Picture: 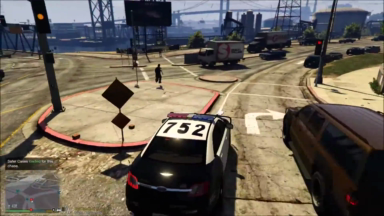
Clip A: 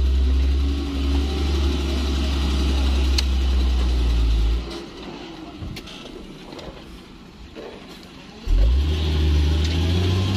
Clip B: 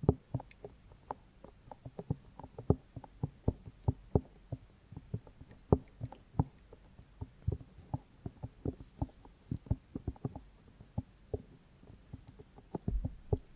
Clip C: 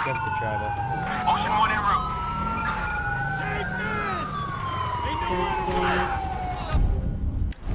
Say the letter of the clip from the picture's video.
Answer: C